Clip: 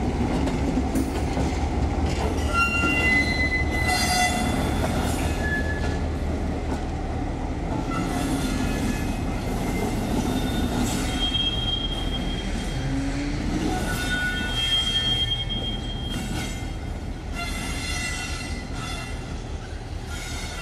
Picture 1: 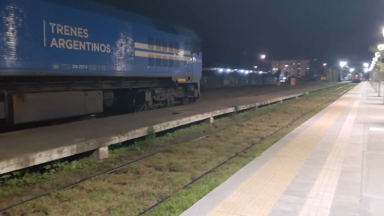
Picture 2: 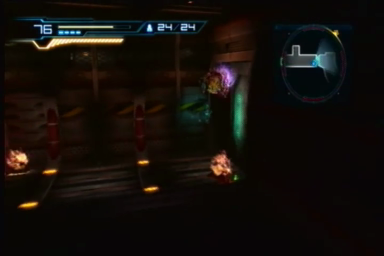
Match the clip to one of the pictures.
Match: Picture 1